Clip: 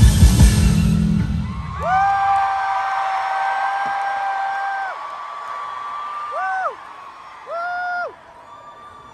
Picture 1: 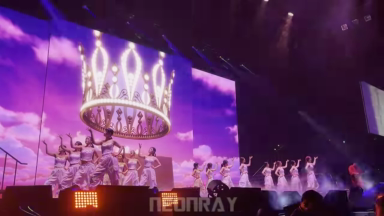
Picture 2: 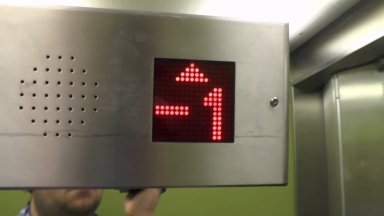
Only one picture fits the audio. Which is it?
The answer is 1